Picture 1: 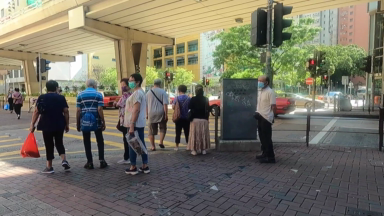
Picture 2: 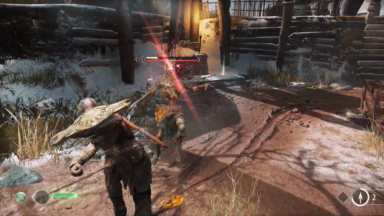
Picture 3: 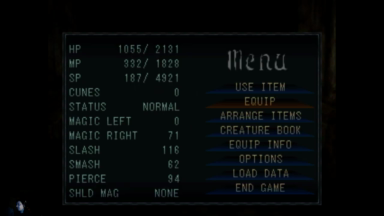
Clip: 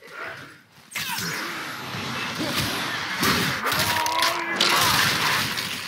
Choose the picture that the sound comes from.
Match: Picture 2